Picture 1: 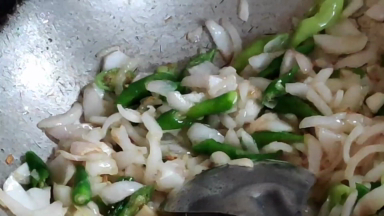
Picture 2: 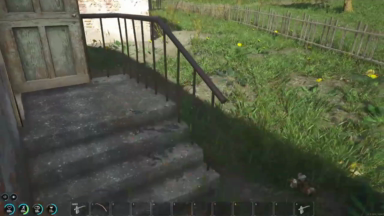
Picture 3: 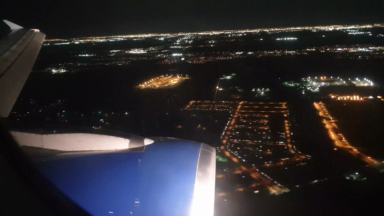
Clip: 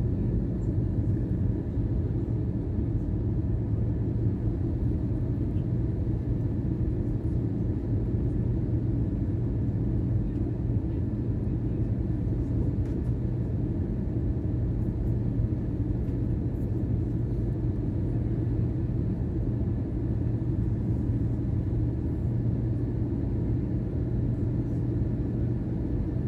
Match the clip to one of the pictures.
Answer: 3